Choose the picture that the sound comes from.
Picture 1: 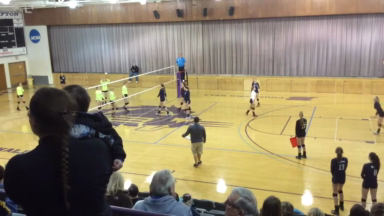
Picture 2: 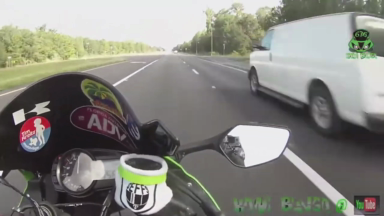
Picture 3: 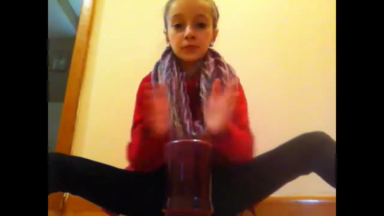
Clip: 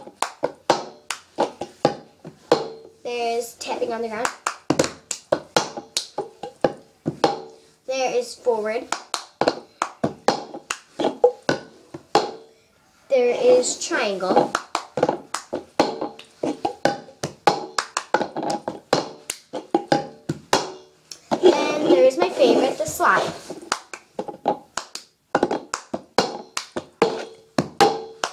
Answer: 3